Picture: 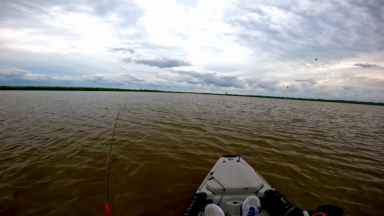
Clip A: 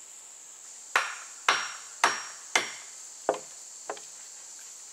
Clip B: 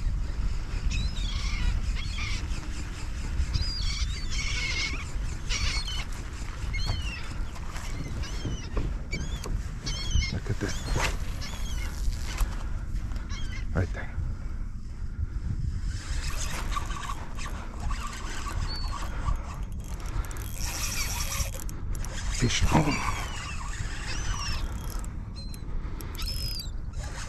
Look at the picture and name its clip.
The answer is B